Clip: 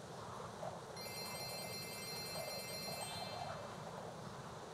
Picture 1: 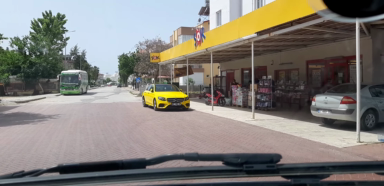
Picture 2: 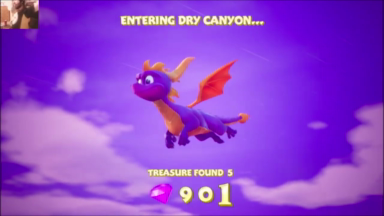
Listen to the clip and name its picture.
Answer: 2